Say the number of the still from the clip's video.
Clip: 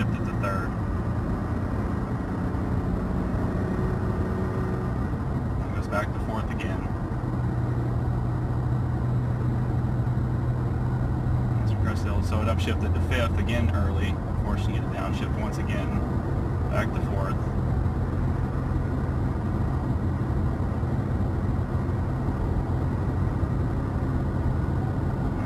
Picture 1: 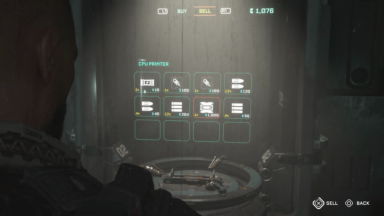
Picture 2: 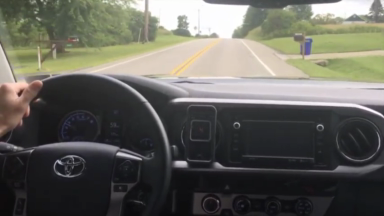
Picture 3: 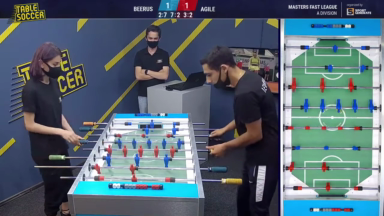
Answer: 2